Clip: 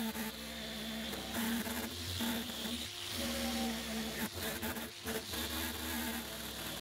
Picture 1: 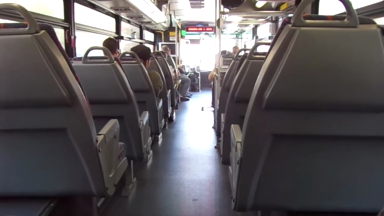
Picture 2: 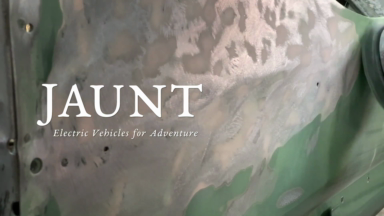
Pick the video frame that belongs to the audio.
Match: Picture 2